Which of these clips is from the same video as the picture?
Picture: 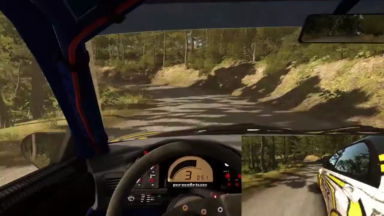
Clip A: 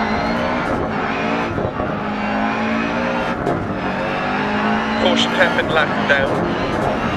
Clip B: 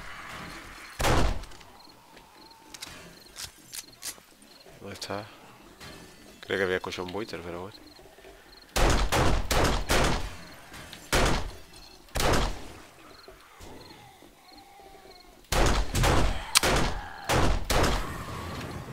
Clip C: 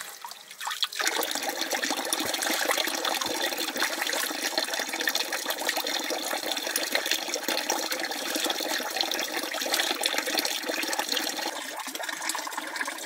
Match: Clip A